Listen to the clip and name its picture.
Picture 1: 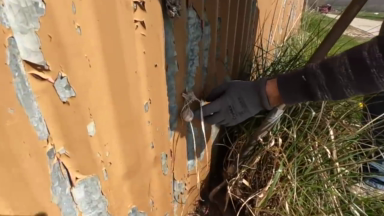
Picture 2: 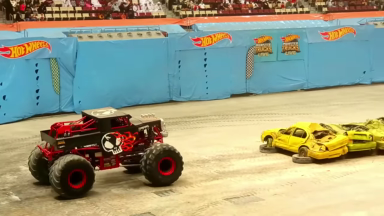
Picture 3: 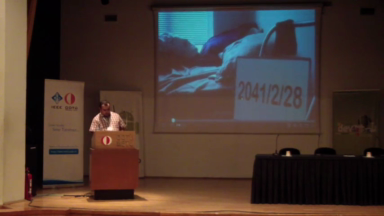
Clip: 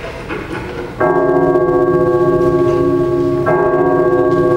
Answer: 3